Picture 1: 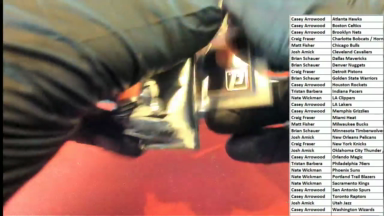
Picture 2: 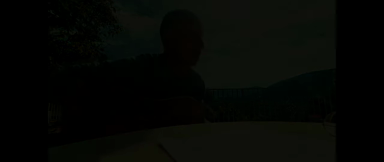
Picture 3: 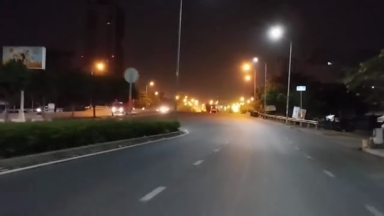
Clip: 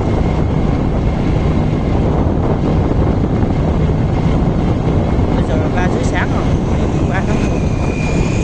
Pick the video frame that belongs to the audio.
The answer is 3